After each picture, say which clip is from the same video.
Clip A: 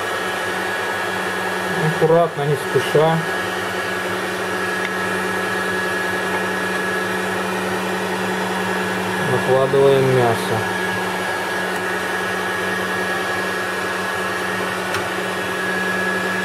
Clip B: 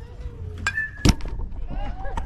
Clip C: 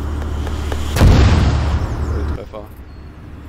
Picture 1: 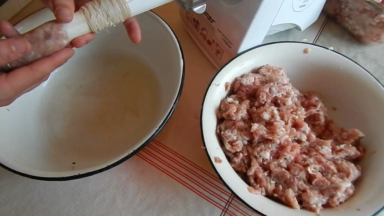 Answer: A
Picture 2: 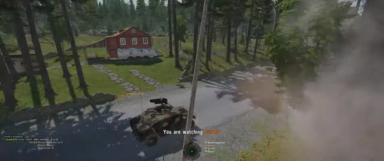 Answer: C